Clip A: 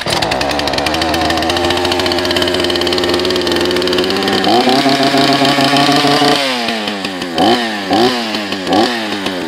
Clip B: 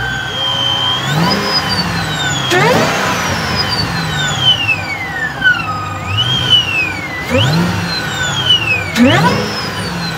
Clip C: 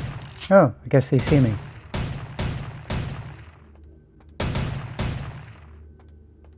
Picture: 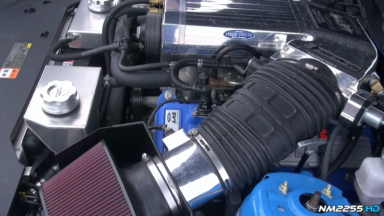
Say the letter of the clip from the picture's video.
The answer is B